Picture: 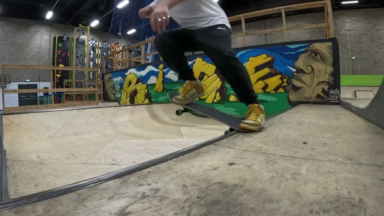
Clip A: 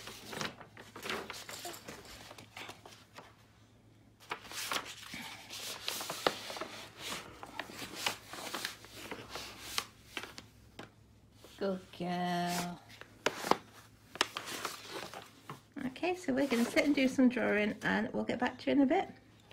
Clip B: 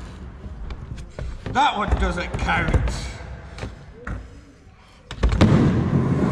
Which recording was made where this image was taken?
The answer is B